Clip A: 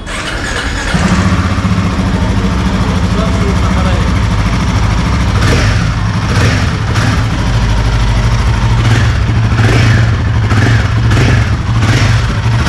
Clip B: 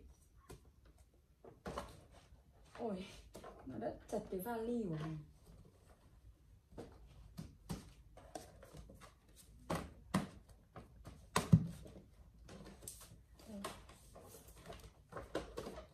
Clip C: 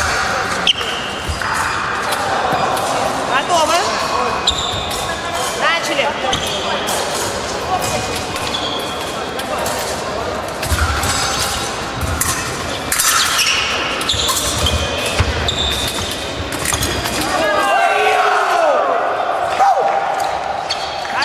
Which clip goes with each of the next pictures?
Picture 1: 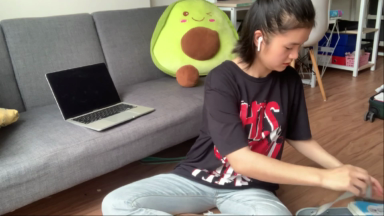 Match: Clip B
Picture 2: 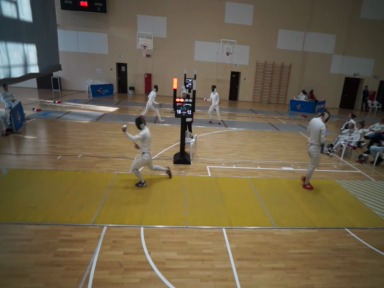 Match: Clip C